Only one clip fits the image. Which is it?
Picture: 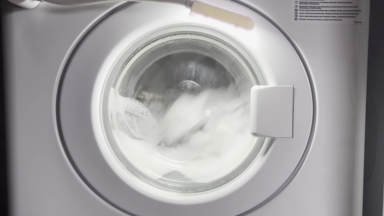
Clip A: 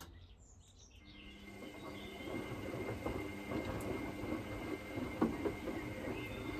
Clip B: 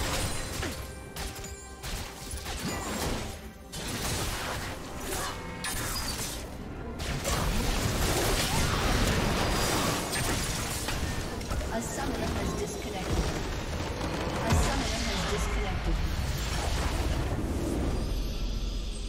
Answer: A